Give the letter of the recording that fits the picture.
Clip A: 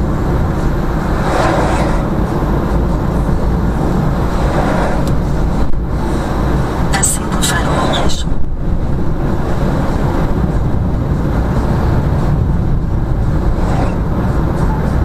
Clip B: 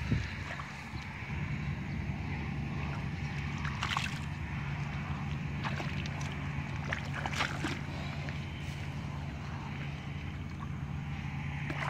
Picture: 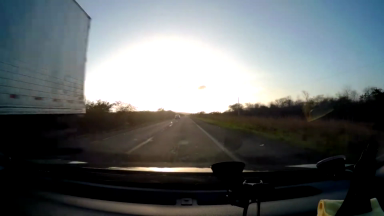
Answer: A